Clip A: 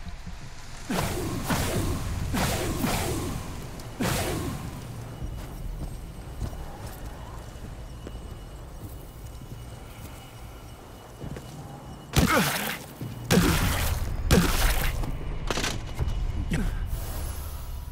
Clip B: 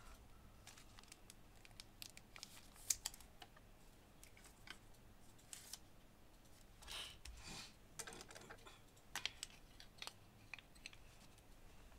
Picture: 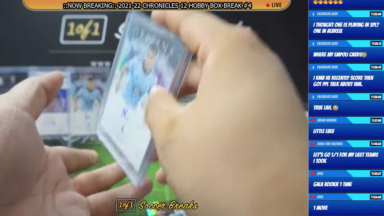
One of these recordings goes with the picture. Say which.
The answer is B